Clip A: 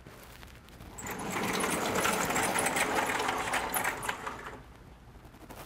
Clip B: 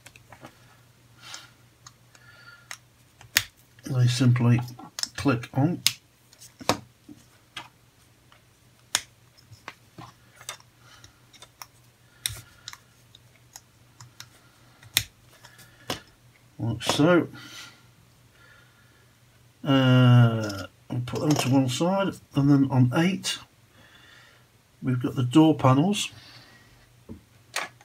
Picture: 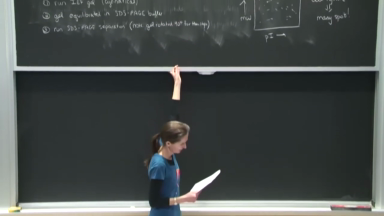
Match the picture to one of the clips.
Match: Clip A